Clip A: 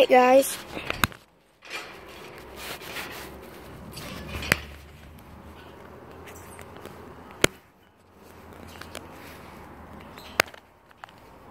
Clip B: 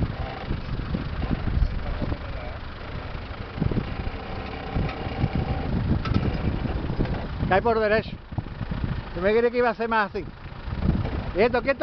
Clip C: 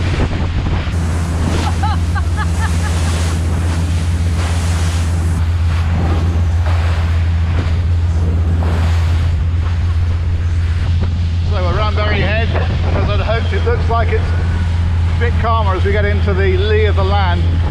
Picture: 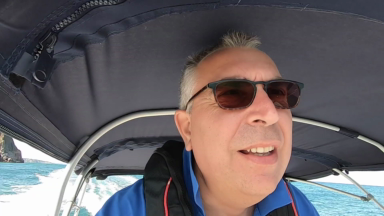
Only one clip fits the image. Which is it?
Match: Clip C